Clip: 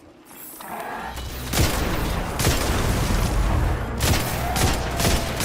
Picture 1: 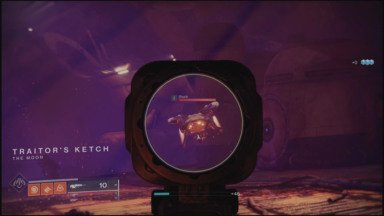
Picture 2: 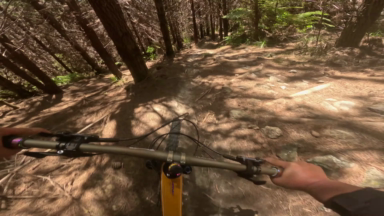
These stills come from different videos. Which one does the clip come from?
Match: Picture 1